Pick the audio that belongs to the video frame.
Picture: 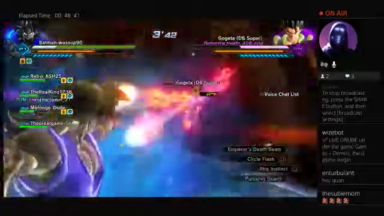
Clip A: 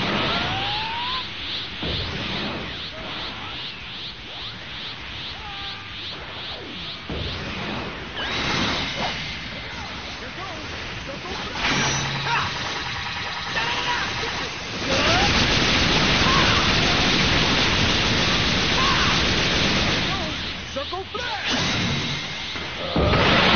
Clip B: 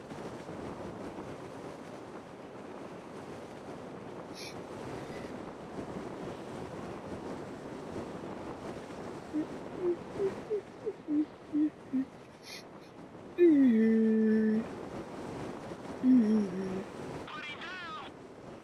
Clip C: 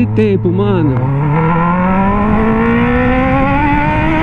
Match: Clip A